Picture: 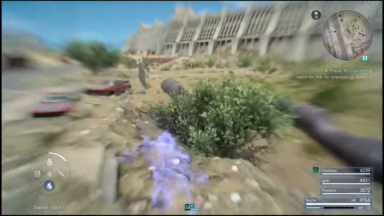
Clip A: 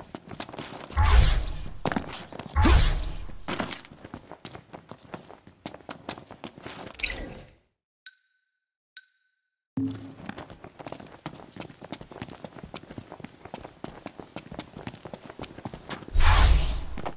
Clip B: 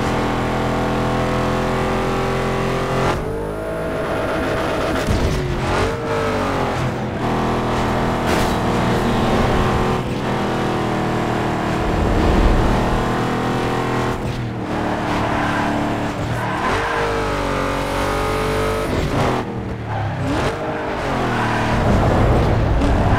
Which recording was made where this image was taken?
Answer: A